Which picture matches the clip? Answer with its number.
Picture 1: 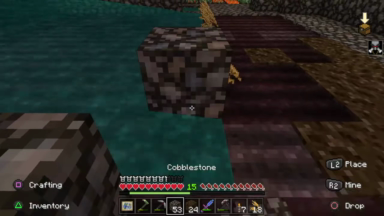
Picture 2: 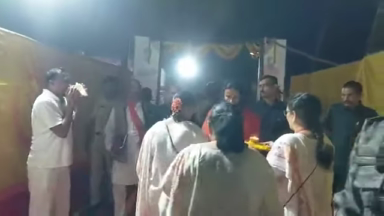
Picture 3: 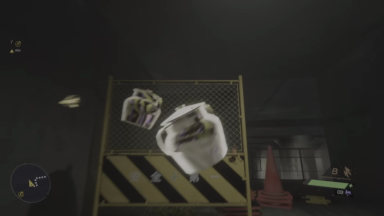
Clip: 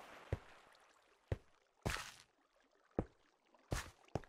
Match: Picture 1